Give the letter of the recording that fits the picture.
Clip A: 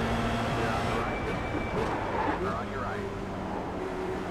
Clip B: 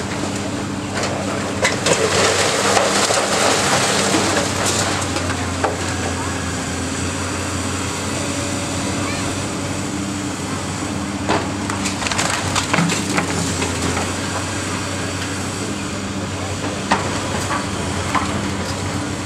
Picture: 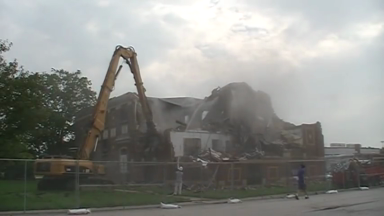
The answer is B